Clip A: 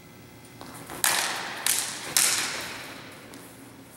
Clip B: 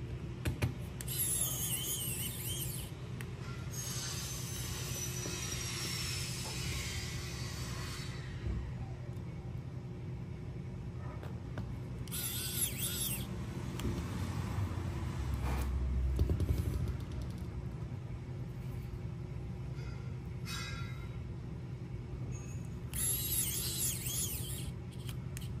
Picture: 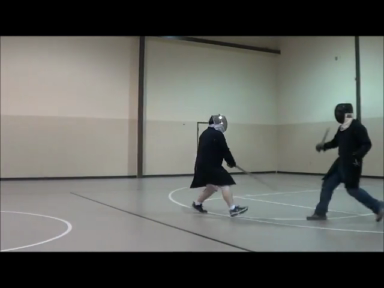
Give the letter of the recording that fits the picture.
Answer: A